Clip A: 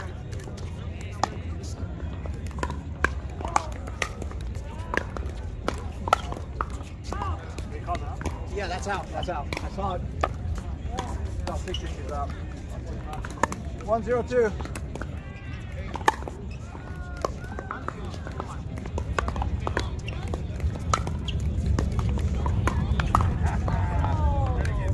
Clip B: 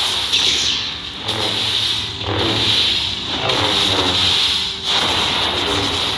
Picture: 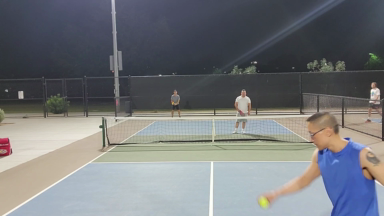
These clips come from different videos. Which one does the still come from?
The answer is A